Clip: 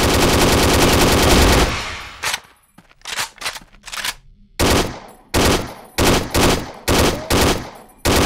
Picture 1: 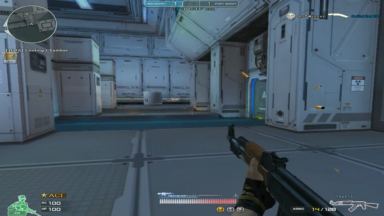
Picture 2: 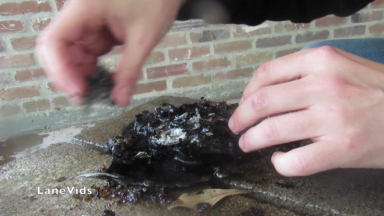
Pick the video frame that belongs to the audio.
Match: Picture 1